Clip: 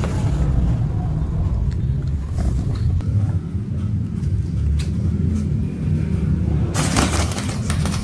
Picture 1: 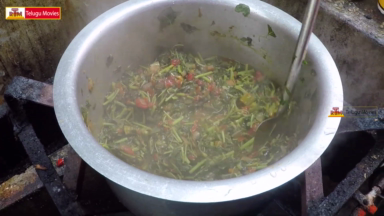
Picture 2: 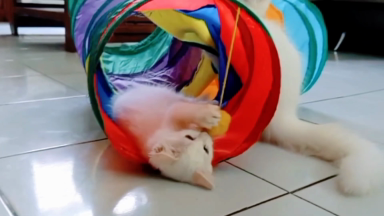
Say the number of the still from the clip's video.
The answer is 2